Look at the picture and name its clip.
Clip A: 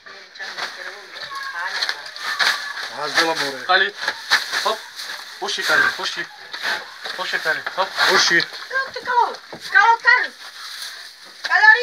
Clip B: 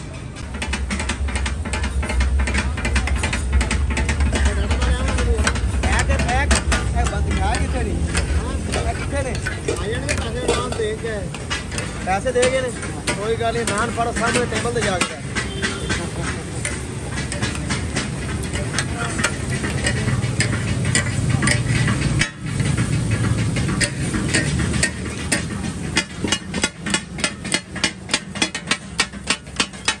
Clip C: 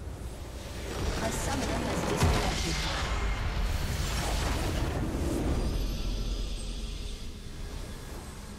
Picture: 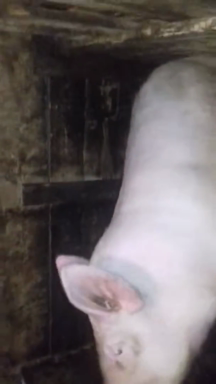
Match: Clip A